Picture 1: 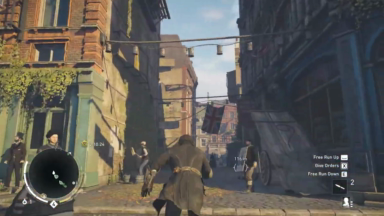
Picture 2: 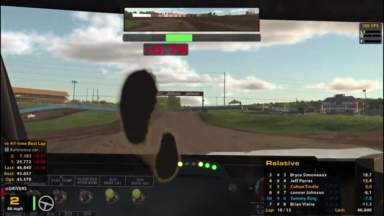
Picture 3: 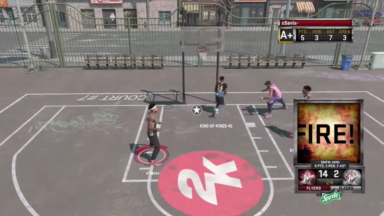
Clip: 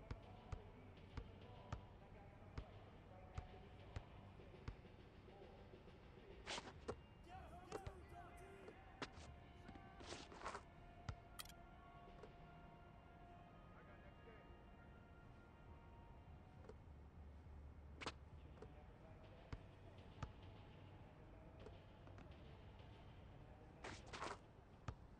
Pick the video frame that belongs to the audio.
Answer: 3